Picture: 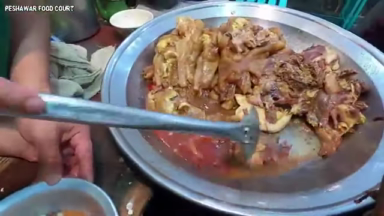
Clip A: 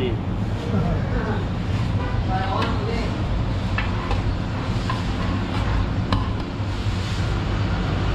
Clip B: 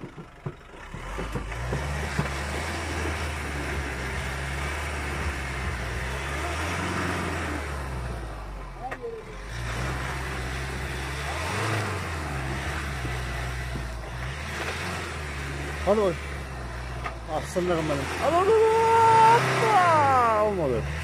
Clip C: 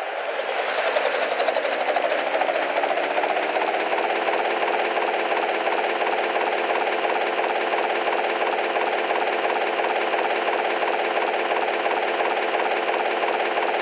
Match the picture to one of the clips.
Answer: A